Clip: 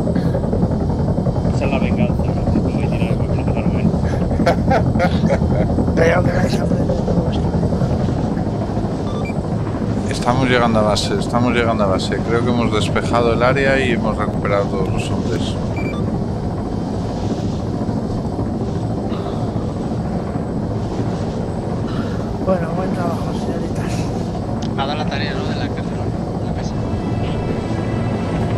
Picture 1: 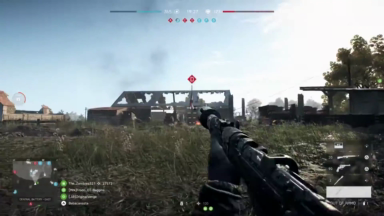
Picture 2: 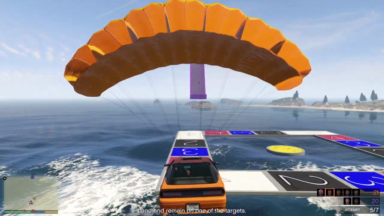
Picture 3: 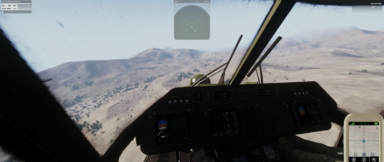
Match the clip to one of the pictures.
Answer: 3